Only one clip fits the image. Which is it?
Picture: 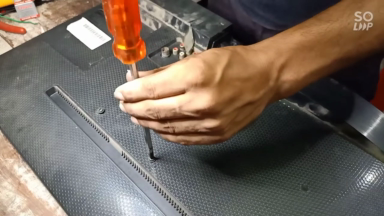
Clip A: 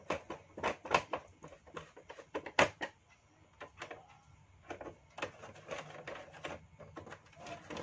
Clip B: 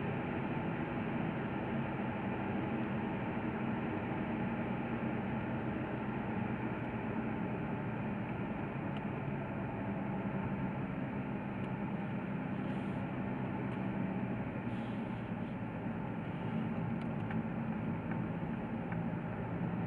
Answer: A